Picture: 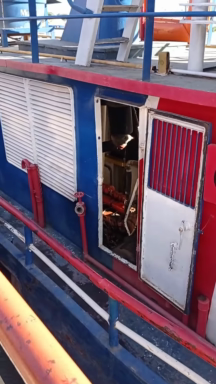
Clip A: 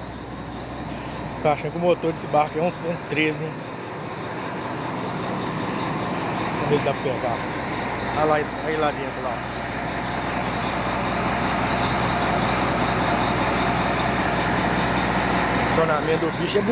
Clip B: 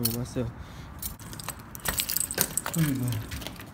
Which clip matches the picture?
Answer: A